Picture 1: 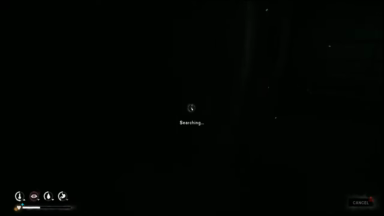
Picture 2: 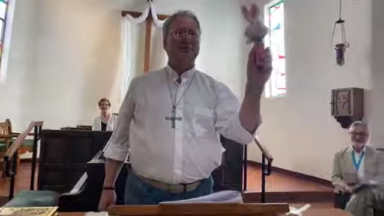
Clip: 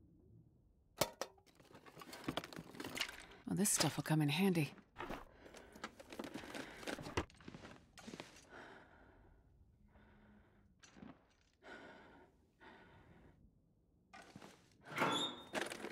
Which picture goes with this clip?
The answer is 1